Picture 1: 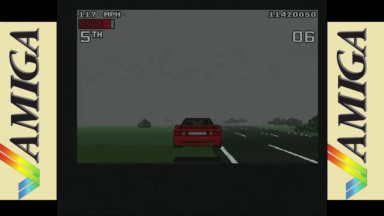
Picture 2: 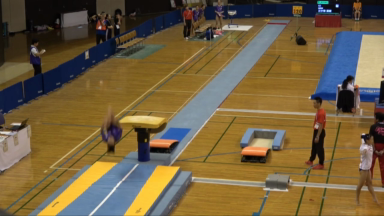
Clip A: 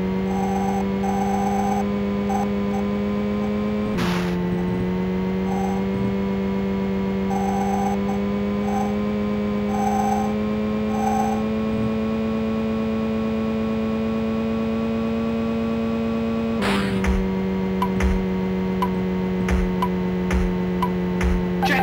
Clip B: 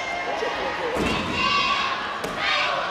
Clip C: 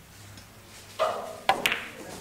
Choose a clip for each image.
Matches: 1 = A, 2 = B